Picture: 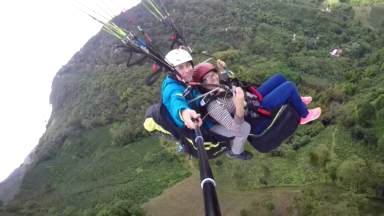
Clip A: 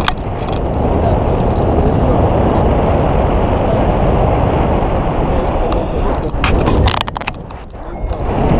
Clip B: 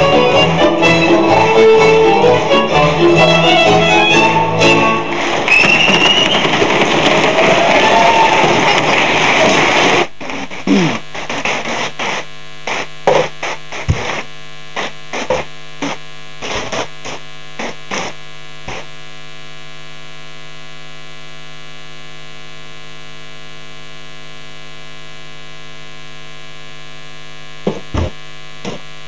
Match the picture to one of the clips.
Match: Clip A